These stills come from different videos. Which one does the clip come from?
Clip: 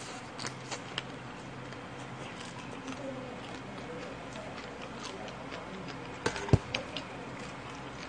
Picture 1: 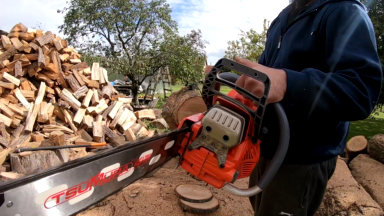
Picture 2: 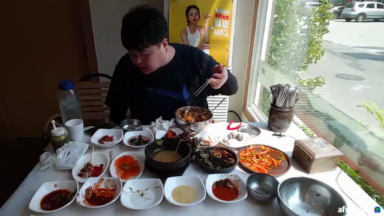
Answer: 2